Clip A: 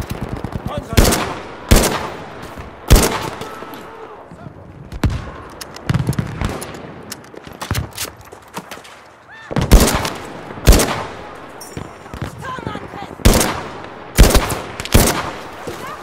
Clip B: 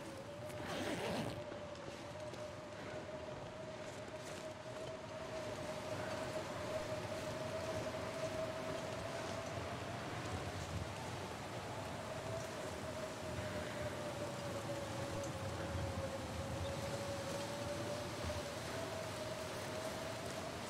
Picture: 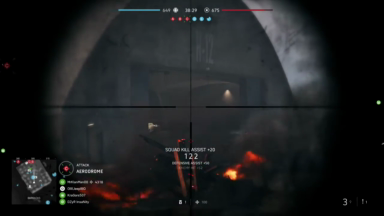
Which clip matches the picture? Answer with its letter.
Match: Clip A